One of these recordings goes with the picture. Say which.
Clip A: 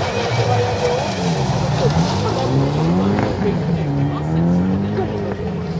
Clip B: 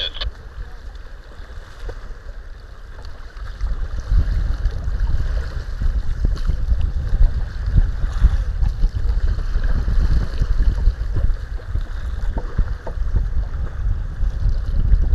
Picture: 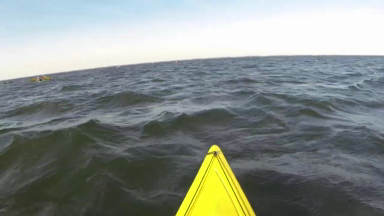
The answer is B